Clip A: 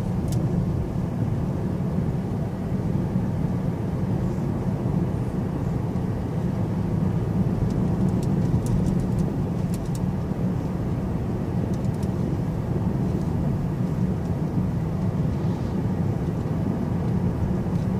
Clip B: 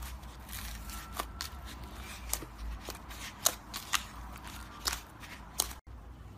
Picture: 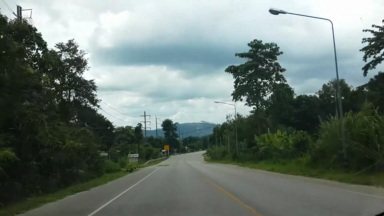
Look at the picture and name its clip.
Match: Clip A